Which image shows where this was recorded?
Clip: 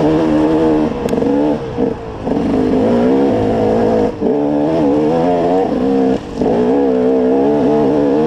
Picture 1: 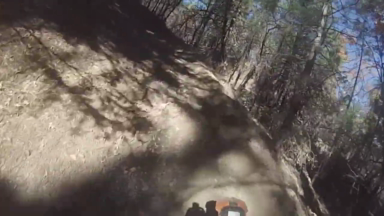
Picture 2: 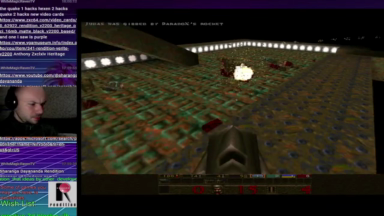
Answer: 1